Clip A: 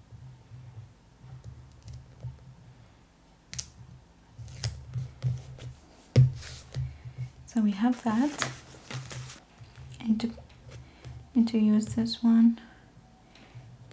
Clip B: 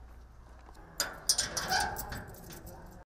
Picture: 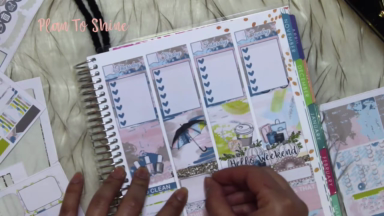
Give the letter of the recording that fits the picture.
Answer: A